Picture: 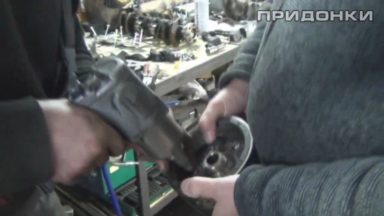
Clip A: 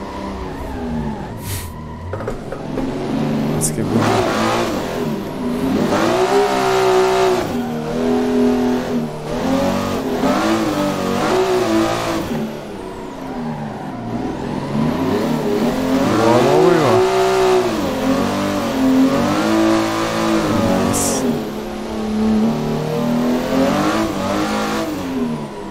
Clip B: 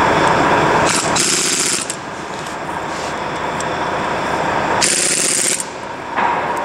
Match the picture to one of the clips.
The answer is B